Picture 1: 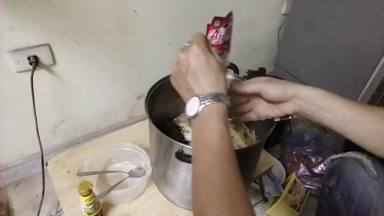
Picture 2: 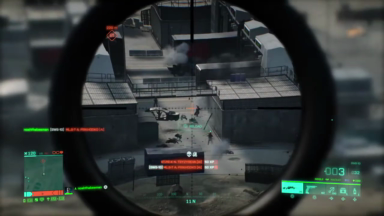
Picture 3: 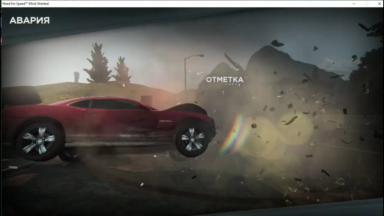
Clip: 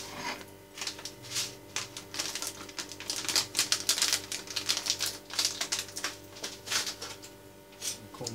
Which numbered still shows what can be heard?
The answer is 1